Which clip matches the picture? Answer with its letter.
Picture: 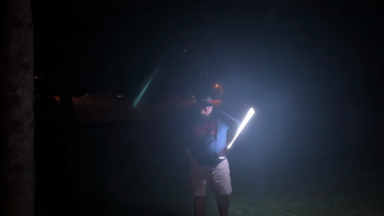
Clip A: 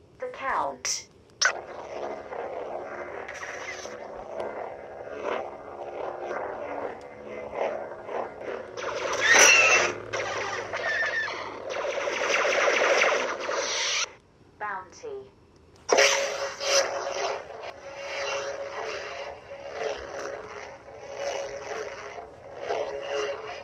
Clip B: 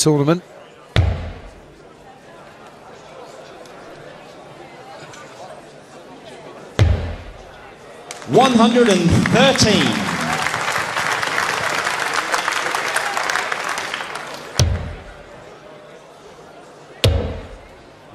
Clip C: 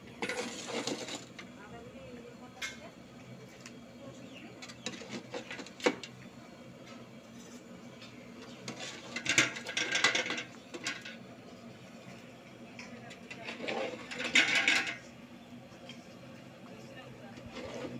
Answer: A